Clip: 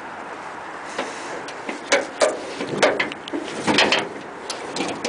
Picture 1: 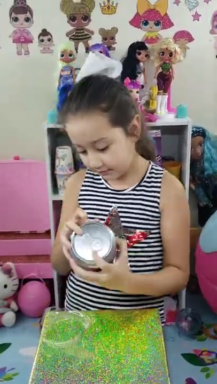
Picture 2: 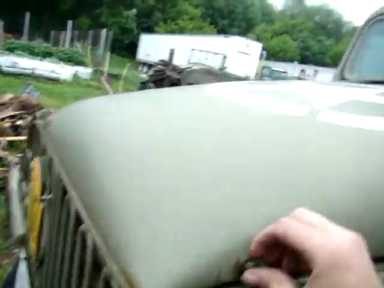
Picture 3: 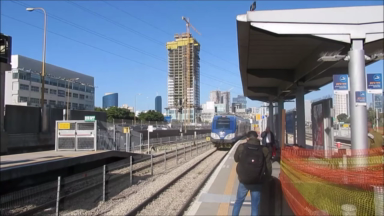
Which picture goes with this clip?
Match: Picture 2